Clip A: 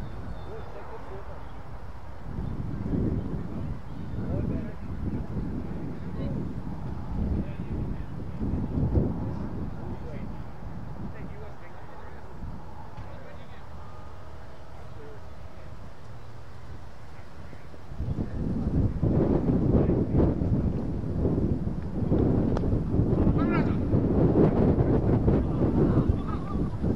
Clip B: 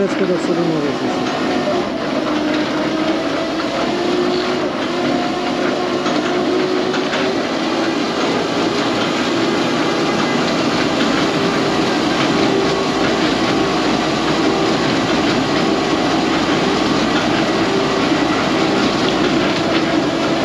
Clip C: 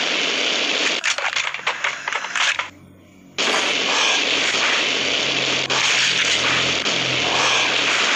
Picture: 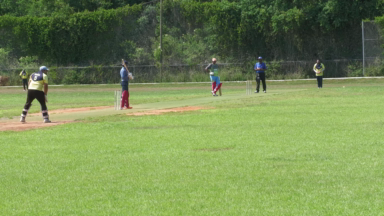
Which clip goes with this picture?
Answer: A